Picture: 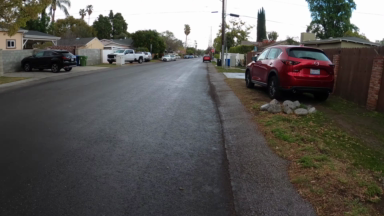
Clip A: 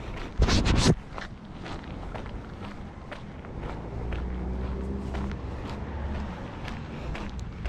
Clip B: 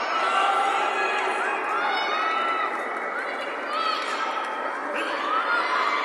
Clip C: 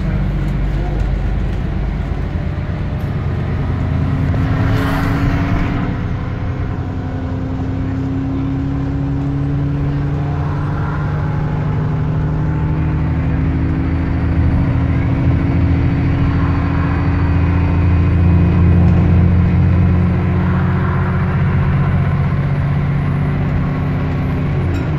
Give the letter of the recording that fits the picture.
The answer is A